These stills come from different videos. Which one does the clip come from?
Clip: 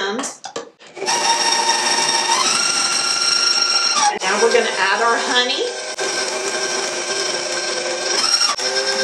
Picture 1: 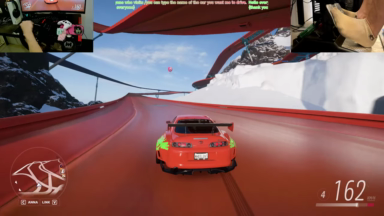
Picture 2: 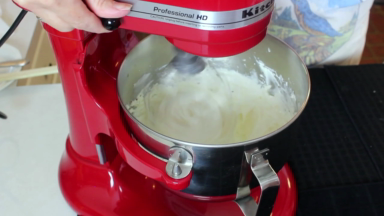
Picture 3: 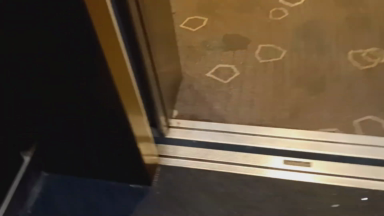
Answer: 2